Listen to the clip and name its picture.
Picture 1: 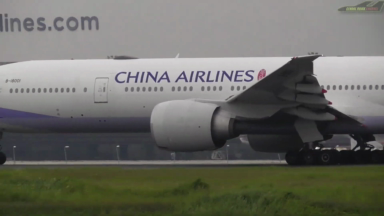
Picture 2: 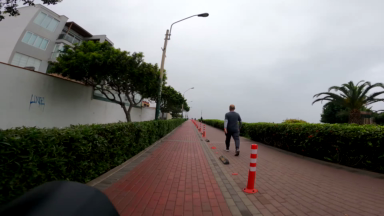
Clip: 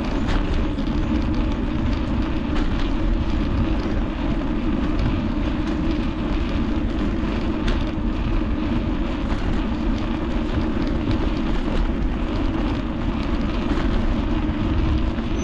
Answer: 2